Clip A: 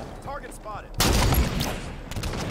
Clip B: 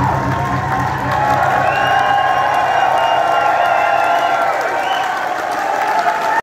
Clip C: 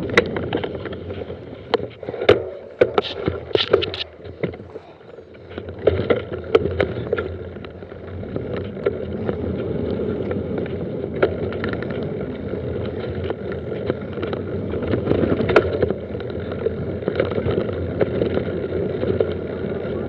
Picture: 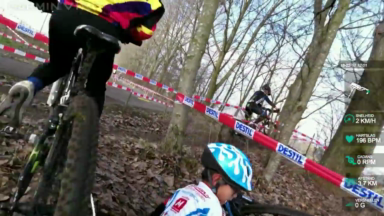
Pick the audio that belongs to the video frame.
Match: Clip C